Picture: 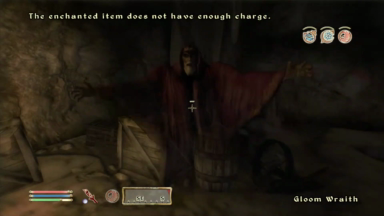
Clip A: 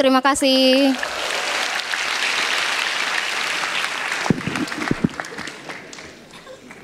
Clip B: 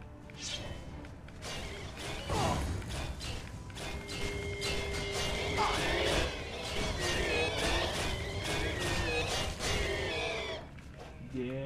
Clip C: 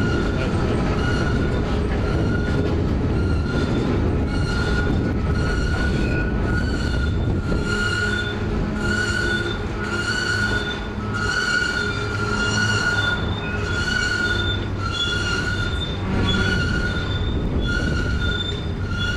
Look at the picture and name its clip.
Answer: B